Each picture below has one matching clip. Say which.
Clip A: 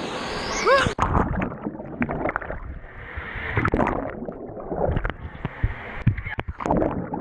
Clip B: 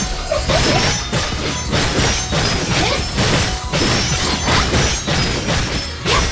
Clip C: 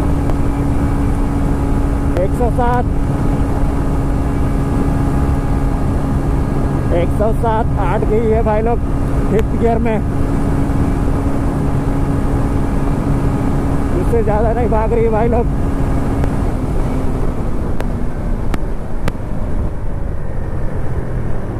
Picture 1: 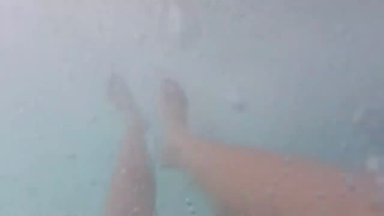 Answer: A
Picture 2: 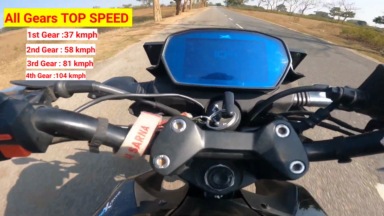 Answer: C